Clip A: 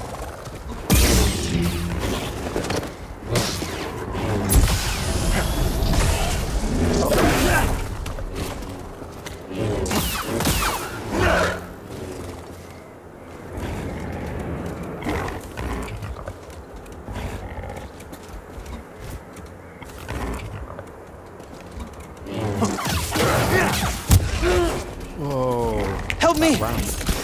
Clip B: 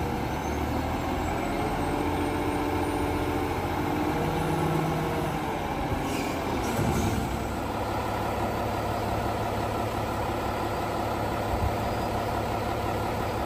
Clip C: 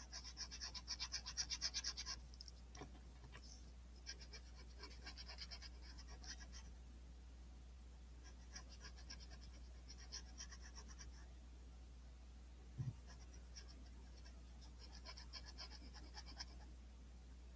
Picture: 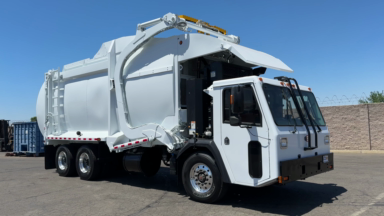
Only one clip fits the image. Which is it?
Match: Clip B